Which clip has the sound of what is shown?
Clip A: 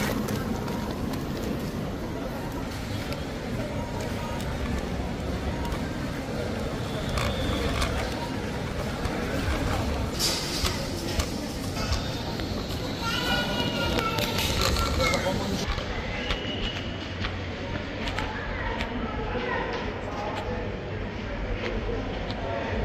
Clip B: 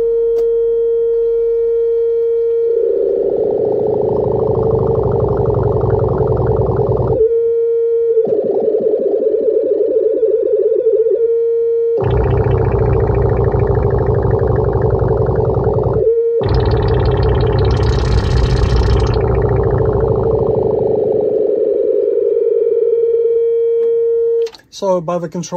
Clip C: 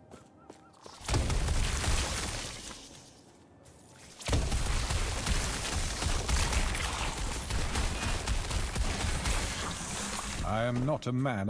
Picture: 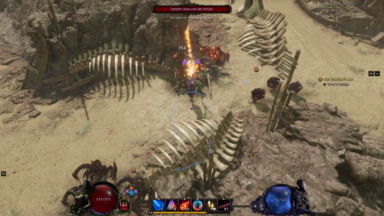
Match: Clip C